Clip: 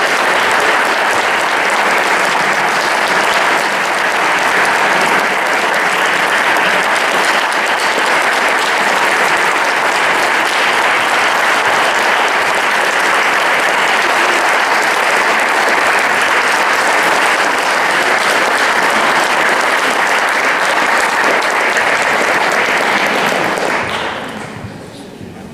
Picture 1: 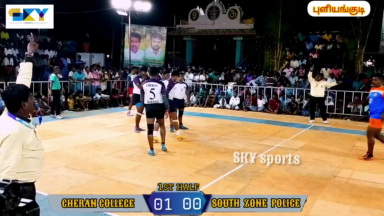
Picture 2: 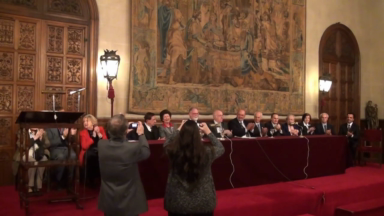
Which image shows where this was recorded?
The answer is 2